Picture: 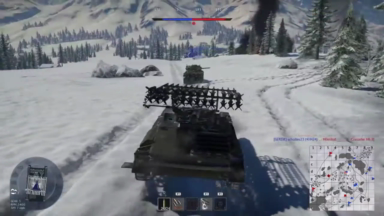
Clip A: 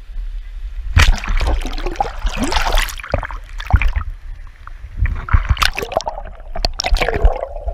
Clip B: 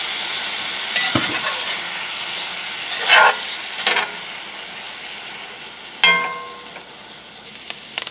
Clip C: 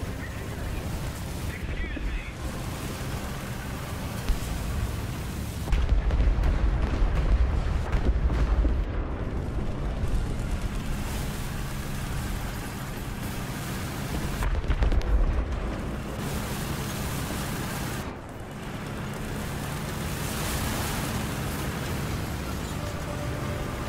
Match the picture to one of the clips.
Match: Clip C